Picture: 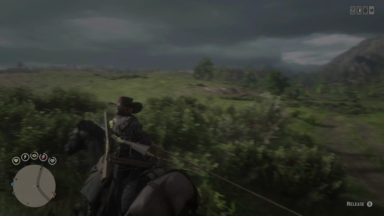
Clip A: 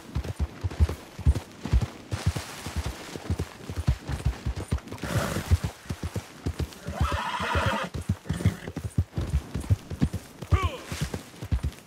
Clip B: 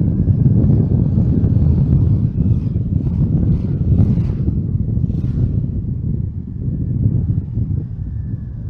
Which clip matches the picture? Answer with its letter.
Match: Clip A